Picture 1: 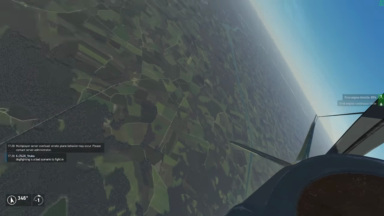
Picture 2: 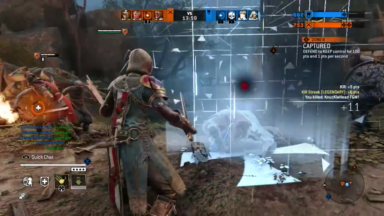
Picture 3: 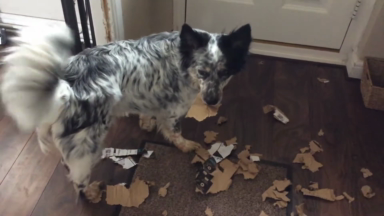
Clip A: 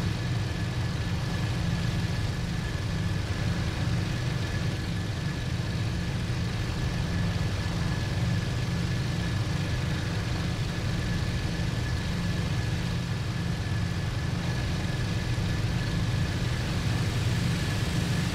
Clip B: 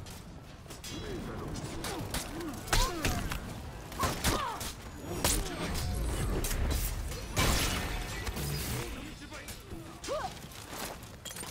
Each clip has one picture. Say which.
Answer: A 1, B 2